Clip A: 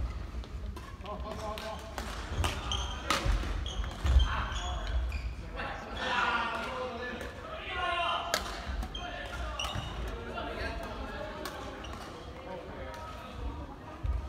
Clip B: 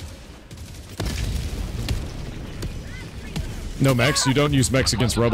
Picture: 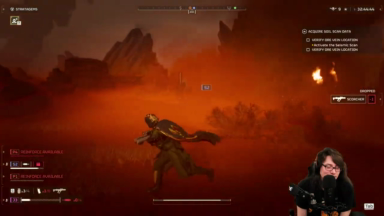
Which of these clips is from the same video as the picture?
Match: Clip B